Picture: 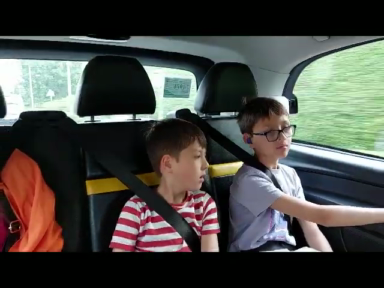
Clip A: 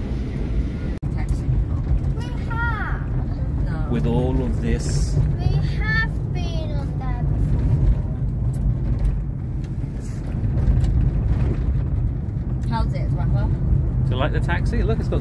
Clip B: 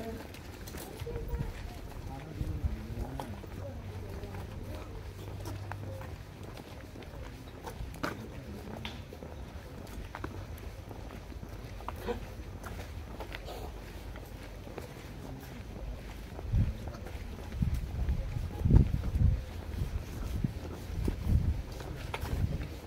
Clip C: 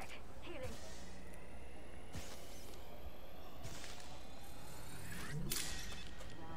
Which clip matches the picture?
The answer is A